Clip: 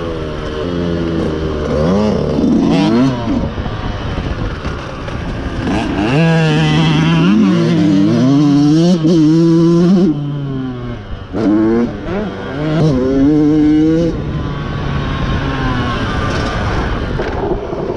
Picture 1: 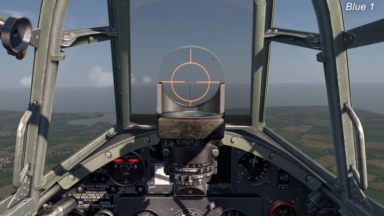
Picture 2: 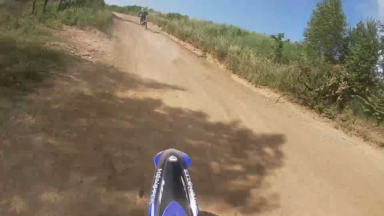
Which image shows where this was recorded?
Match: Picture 2